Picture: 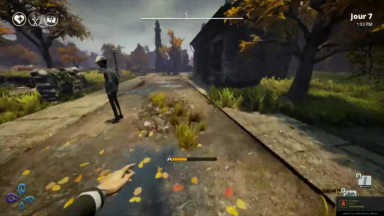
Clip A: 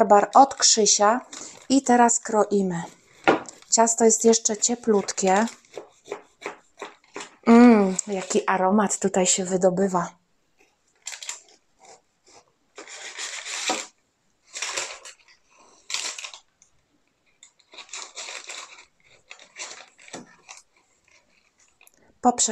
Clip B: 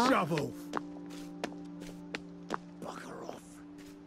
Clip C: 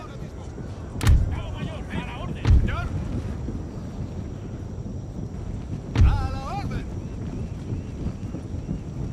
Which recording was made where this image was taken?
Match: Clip B